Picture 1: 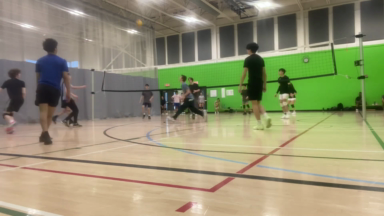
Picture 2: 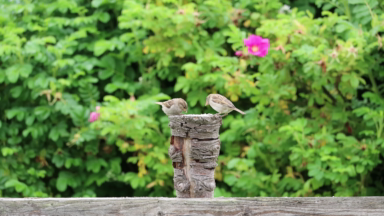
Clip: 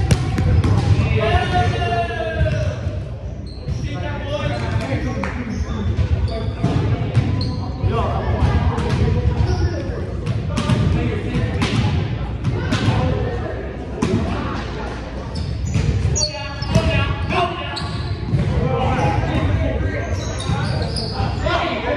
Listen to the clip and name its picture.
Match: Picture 1